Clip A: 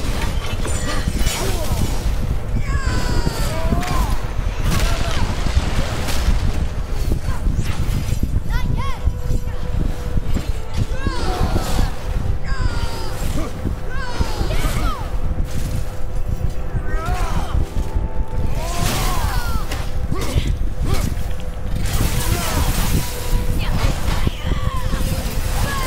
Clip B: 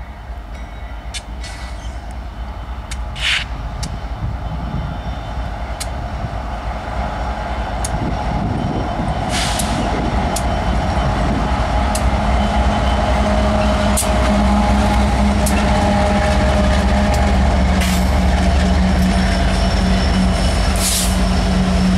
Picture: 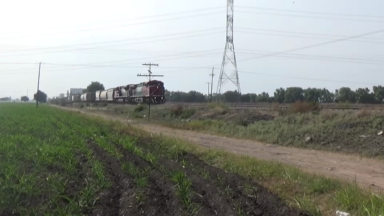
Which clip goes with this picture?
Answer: B